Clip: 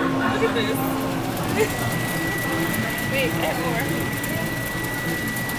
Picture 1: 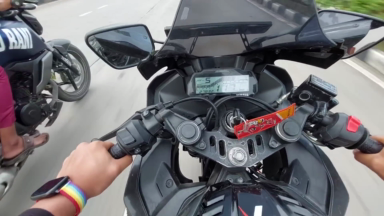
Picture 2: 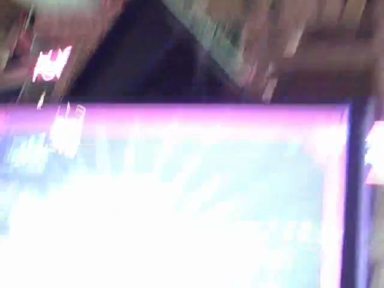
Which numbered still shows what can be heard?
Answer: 2